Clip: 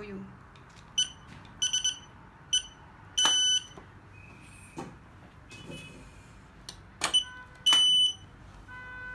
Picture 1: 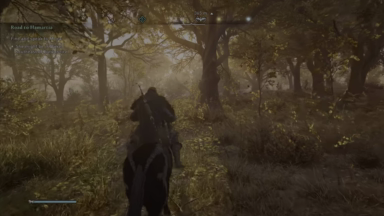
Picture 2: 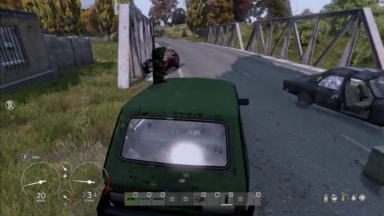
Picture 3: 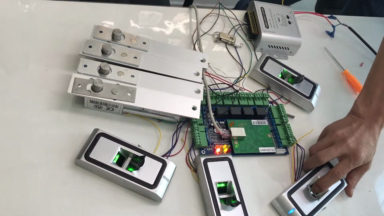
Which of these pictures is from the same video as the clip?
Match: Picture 3